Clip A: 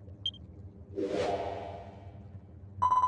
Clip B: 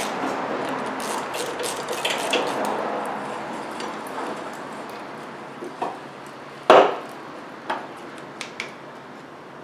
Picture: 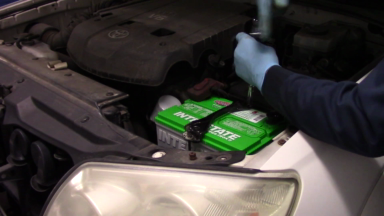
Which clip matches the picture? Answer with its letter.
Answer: B